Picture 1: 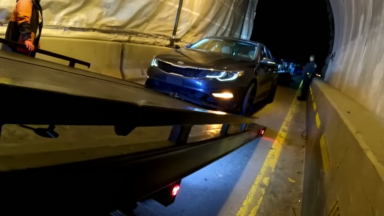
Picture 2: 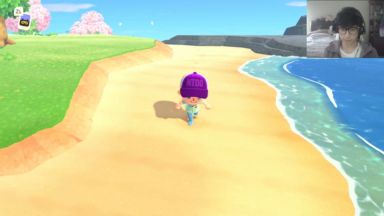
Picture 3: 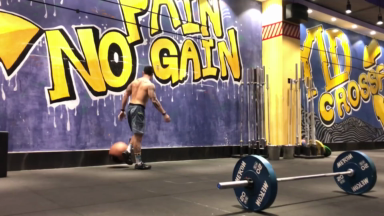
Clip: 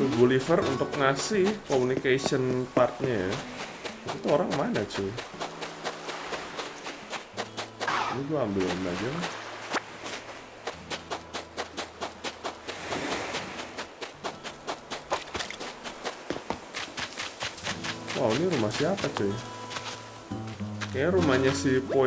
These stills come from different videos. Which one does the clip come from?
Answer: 2